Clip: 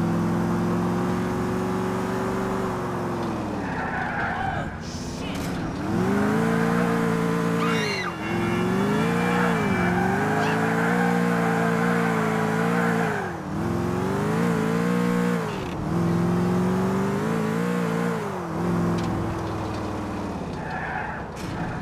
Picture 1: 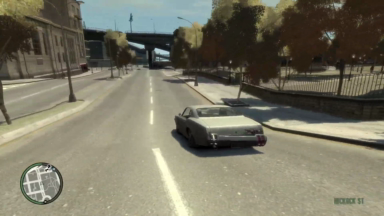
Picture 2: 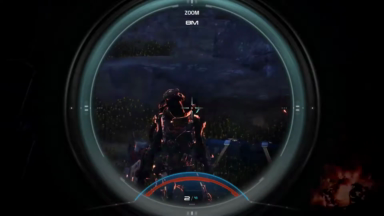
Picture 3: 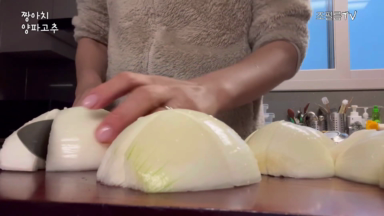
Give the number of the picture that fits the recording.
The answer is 1